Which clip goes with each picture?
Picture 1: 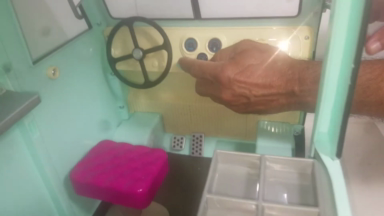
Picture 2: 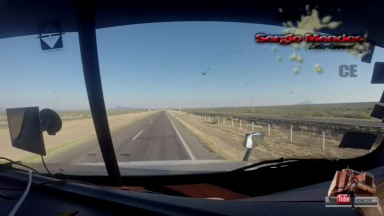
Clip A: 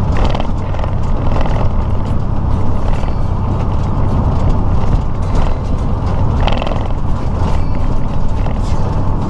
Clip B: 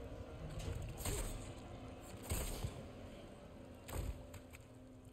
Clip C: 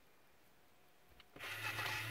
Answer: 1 C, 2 A